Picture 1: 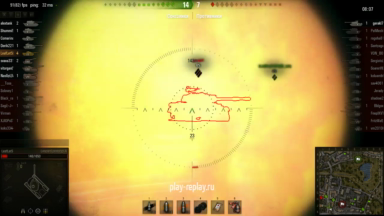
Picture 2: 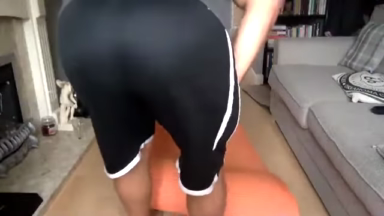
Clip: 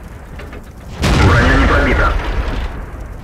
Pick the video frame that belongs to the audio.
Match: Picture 1